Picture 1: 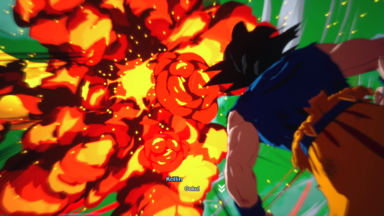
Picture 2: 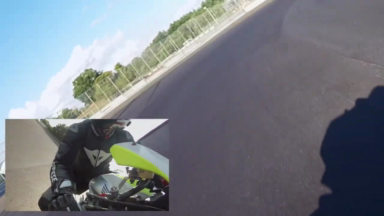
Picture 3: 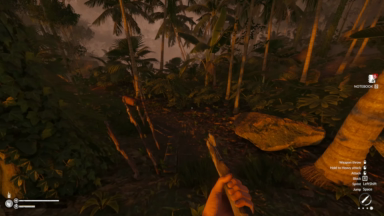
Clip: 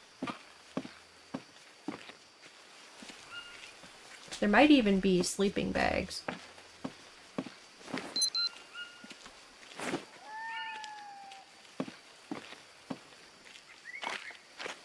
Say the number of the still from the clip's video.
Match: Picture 3